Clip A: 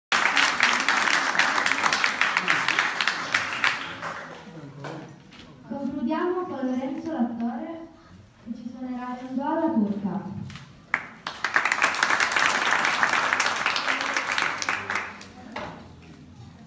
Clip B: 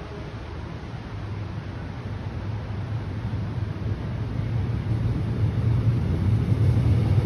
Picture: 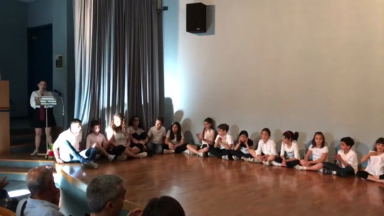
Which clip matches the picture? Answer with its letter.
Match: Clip A